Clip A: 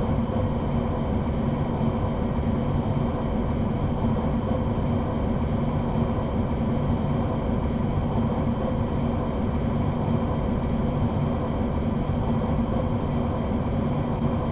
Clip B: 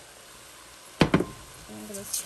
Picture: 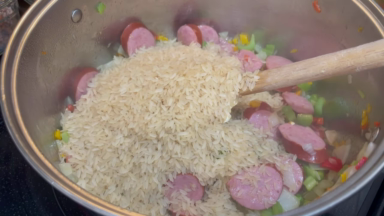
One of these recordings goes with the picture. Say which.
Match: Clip B